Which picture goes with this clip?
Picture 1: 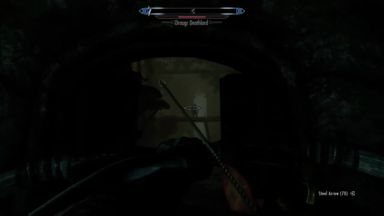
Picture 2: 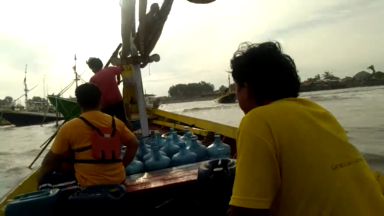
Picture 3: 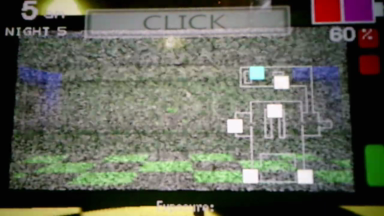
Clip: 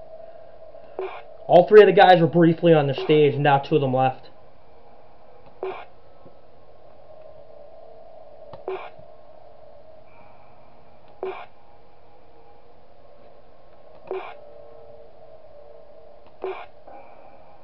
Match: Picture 3